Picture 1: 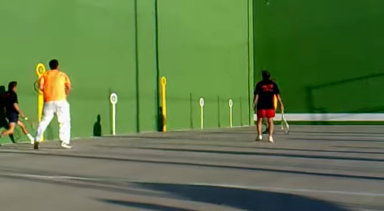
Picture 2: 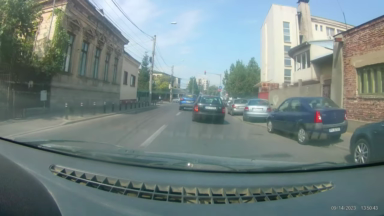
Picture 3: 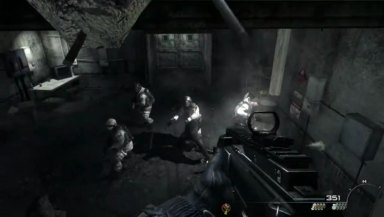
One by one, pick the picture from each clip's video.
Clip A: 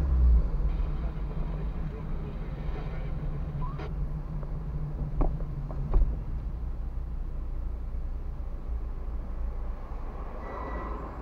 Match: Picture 2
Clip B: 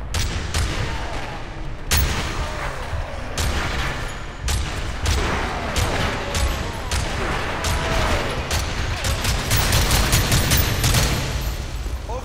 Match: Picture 3